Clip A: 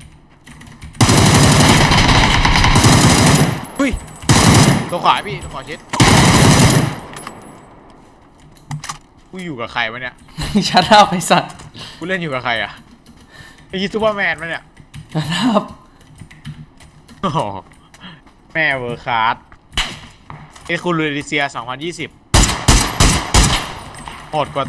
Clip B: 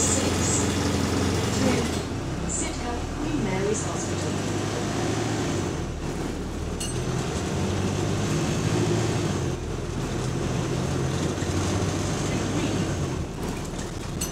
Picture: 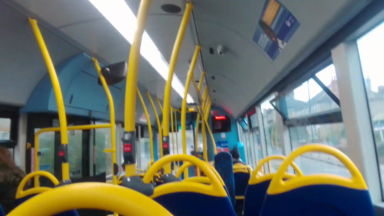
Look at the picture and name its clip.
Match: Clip B